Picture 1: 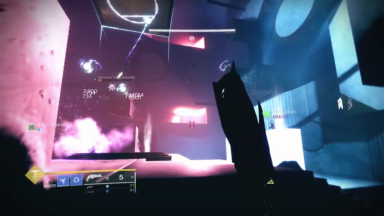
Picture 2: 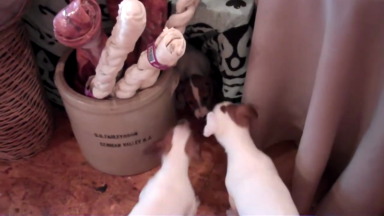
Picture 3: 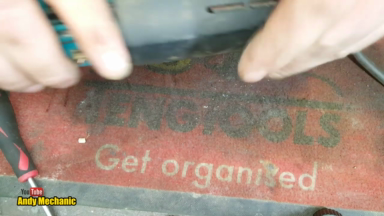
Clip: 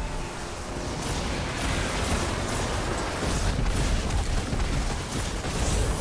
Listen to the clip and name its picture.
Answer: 1